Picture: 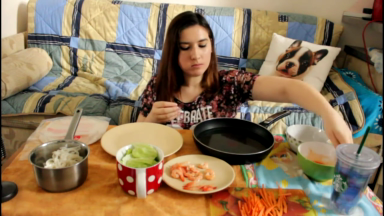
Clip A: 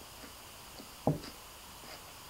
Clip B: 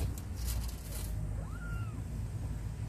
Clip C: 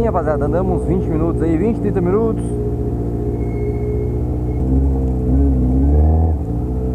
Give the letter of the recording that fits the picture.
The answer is A